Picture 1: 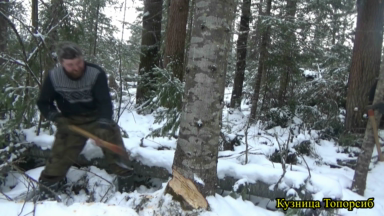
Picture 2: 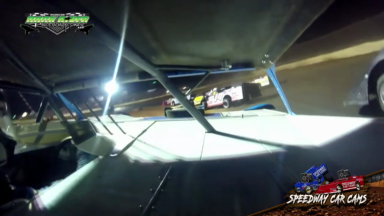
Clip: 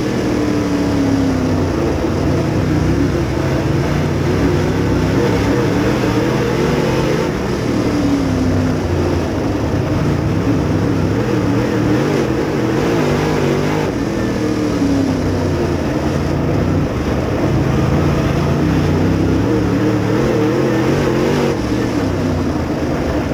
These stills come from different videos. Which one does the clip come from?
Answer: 2